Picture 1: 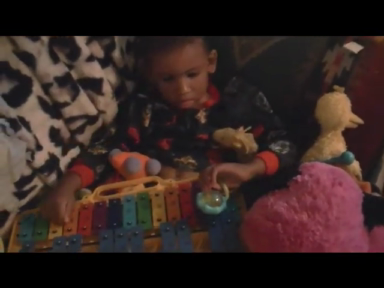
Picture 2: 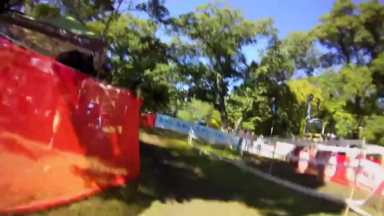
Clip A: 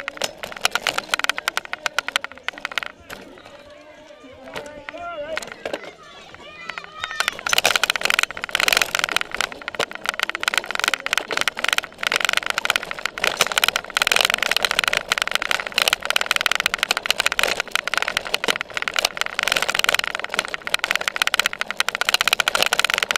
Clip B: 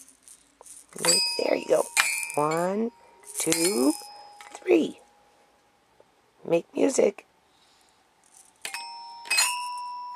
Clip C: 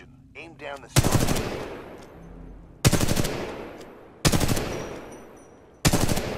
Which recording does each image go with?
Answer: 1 B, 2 A